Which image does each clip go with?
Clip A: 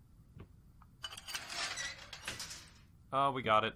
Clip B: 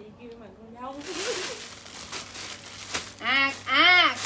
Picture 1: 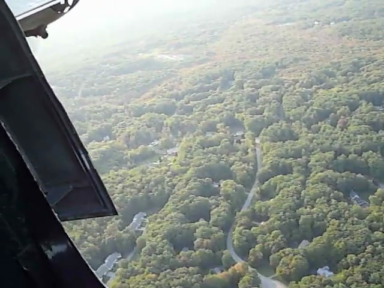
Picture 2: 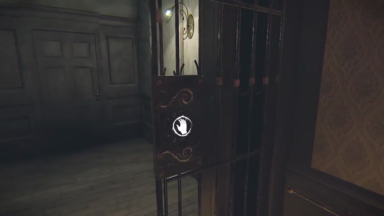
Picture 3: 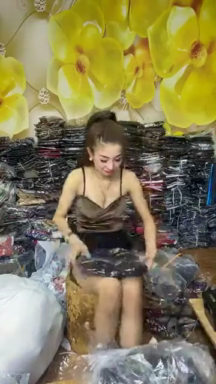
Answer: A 2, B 3